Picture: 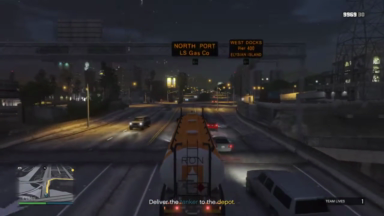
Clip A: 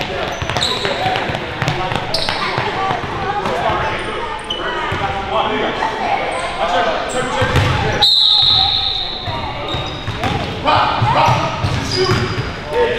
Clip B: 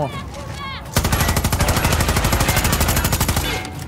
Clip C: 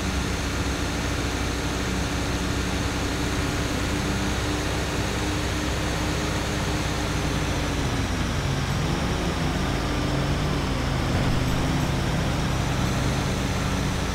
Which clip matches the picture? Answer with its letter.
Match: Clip C